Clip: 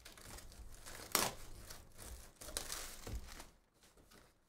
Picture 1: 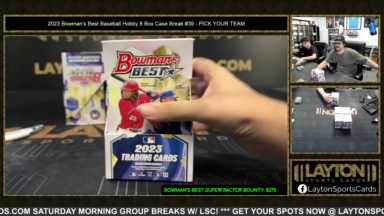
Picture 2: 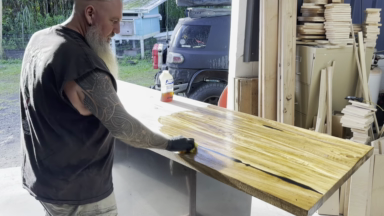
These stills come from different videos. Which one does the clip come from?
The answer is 1